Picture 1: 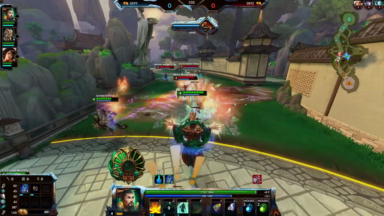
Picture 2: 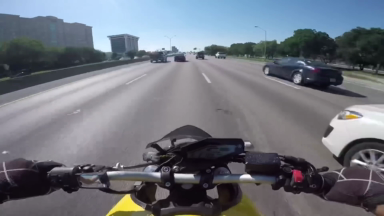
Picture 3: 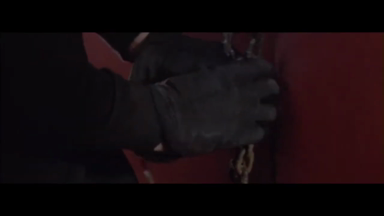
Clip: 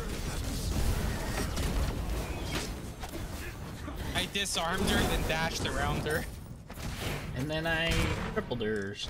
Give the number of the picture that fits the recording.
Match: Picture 1